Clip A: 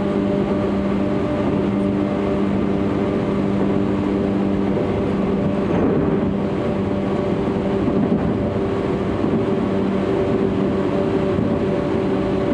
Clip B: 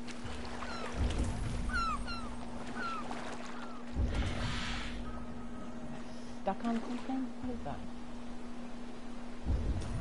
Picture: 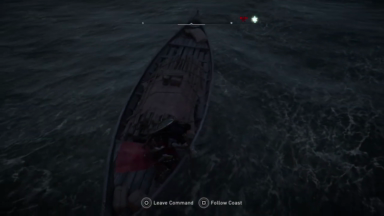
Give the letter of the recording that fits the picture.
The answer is B